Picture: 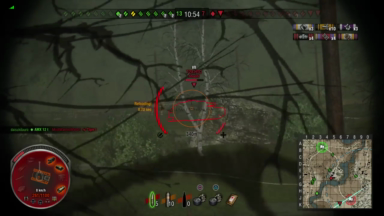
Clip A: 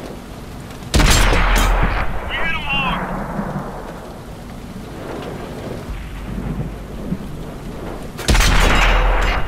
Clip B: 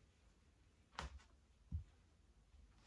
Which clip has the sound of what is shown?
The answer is A